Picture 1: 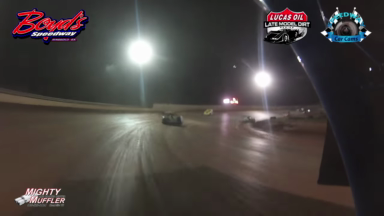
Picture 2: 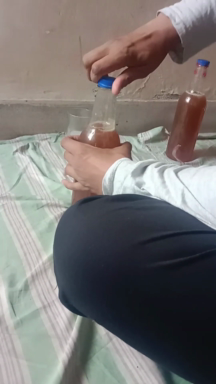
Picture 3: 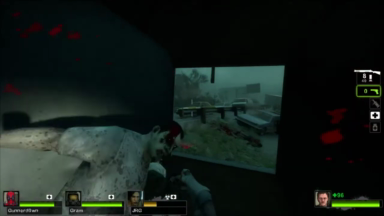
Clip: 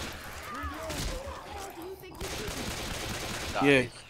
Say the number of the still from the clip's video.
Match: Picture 3